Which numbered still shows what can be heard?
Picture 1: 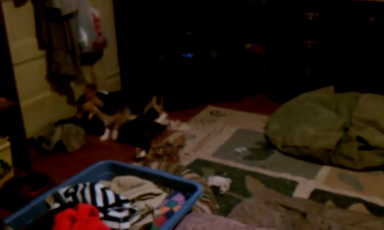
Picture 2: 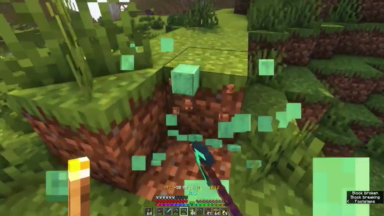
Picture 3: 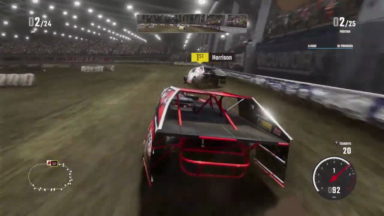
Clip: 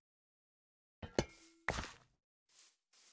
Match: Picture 2